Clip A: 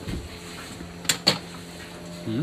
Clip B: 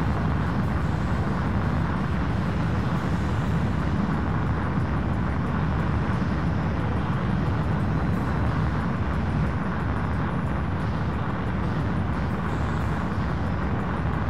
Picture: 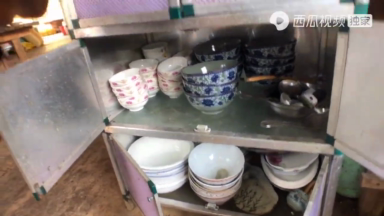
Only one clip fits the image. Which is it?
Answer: A